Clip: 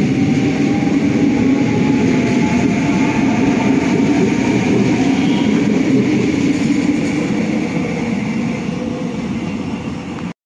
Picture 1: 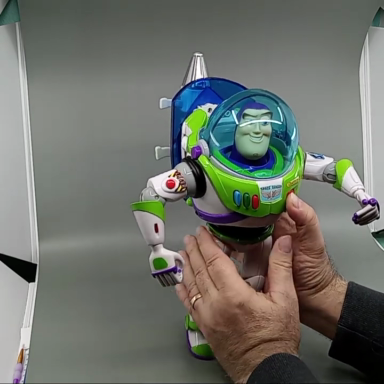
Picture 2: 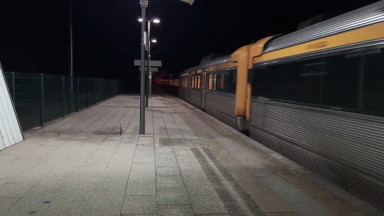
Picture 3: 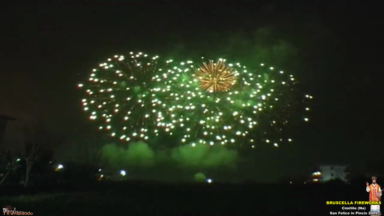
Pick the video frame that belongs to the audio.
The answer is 2